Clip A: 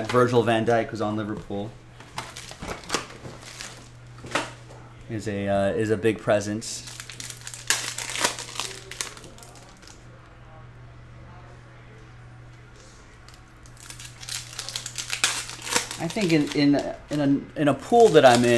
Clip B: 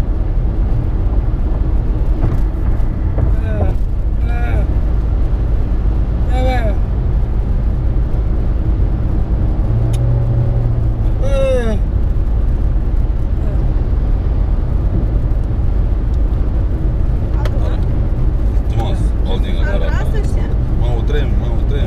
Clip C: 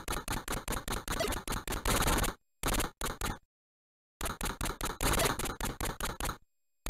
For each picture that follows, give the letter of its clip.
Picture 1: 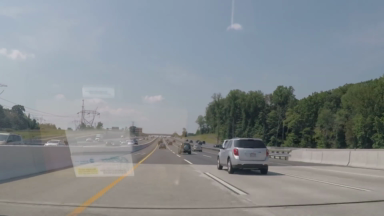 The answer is B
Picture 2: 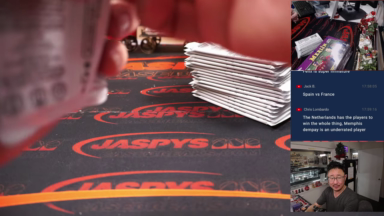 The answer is A